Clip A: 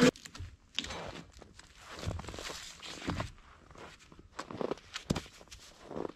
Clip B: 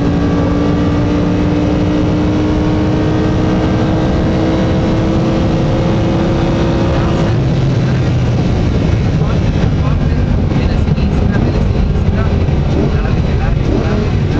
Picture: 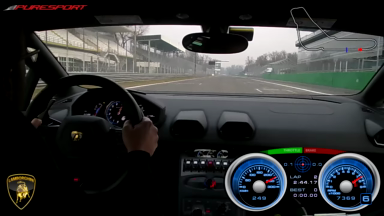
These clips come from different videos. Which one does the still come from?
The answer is B